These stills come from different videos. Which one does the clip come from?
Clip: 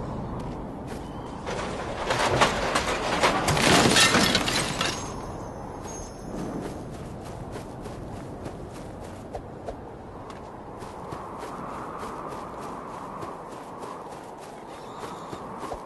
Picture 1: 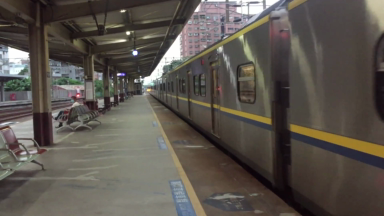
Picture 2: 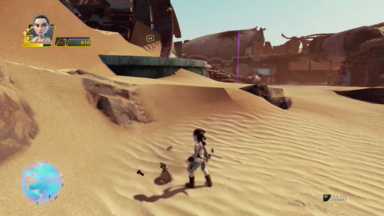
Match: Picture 2